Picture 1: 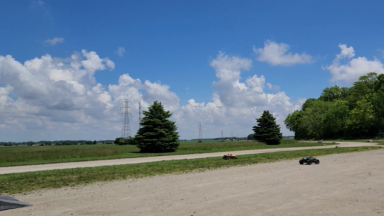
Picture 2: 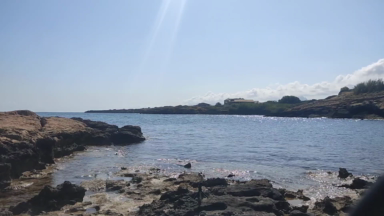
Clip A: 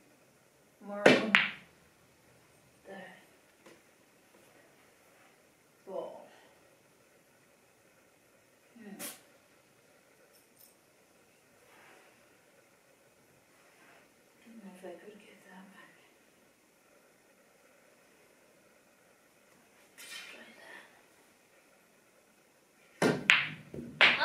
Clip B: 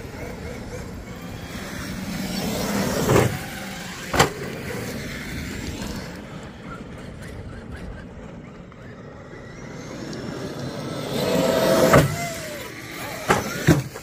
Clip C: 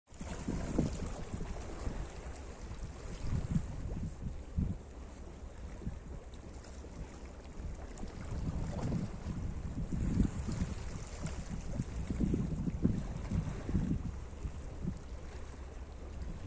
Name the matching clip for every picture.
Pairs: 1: B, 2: C